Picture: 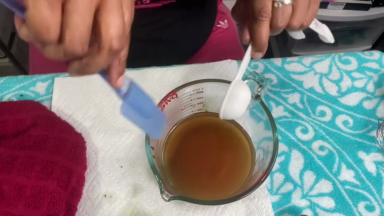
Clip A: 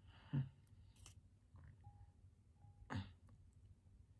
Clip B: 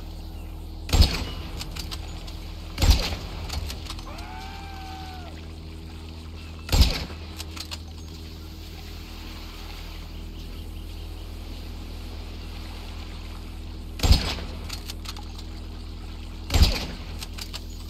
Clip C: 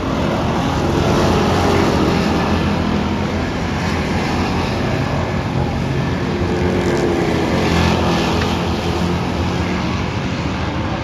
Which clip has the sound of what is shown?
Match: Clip A